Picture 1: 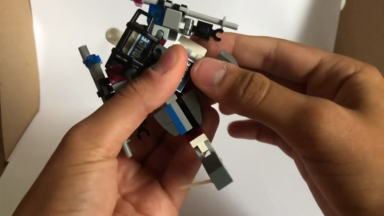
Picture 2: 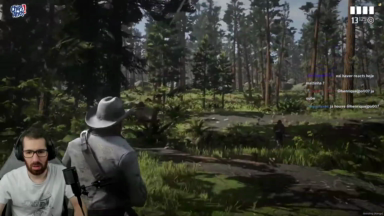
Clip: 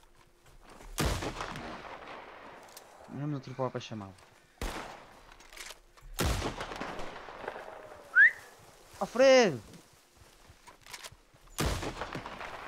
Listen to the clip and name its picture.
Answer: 2